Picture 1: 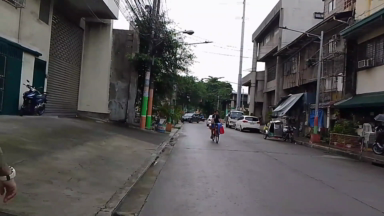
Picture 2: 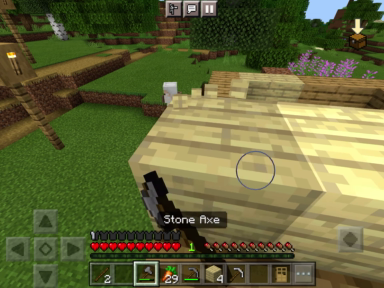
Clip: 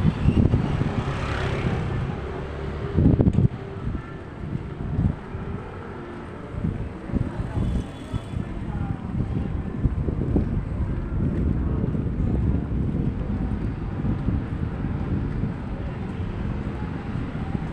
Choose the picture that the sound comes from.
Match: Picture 1